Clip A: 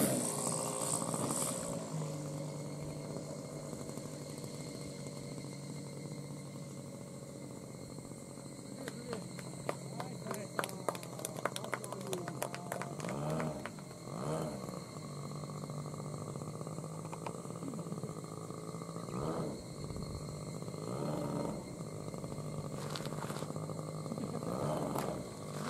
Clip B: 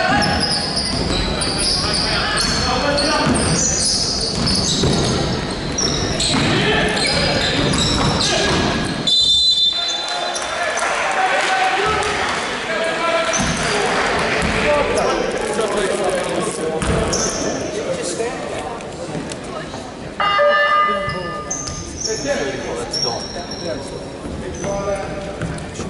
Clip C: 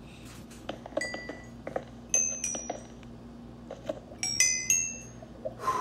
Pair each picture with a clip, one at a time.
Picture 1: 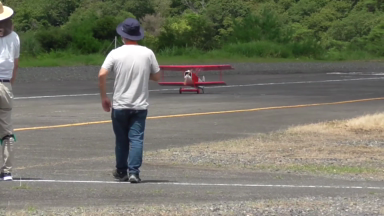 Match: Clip A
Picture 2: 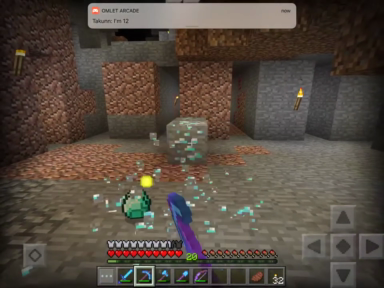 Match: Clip C